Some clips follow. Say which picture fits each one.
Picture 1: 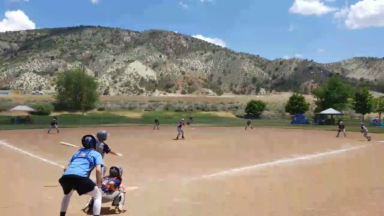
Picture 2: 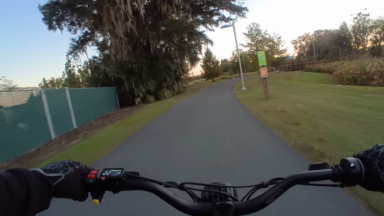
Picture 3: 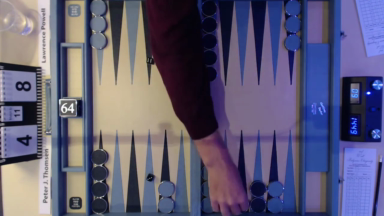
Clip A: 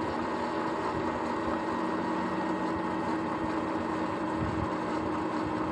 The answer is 2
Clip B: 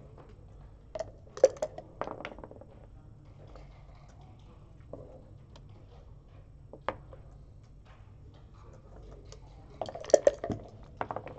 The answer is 3